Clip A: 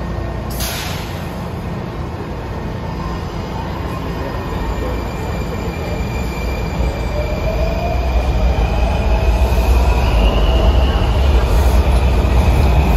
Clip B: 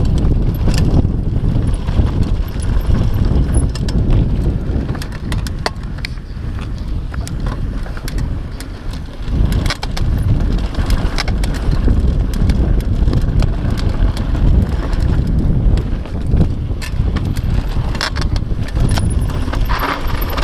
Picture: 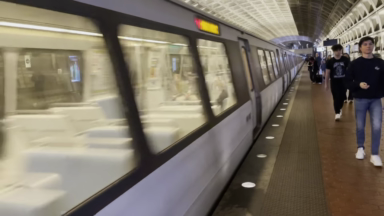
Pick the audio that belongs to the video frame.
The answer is A